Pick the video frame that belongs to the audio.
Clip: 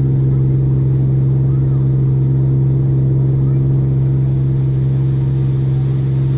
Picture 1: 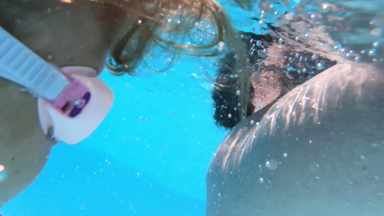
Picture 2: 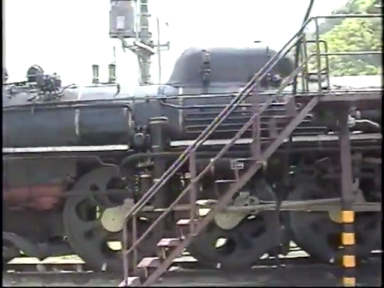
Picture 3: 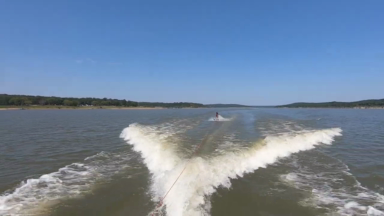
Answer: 3